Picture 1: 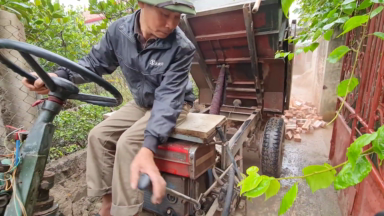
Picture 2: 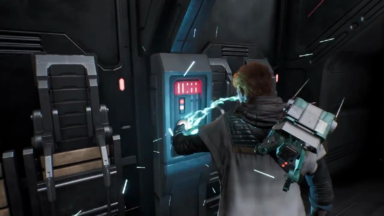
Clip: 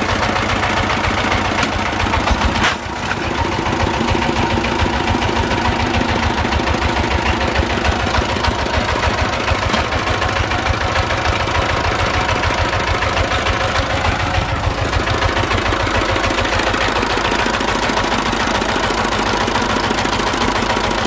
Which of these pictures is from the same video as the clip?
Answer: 1